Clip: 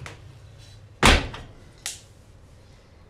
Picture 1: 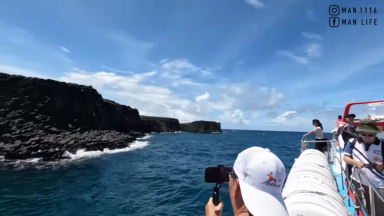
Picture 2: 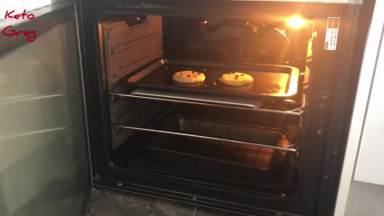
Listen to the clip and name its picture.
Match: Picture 2